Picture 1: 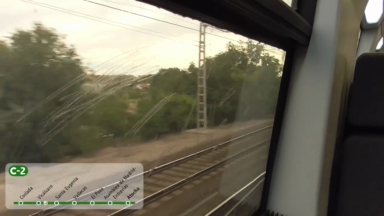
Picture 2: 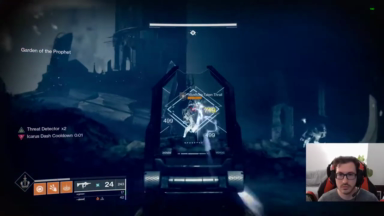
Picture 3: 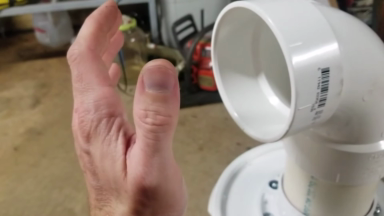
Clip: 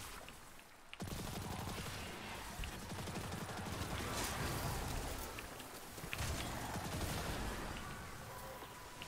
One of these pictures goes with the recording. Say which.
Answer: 2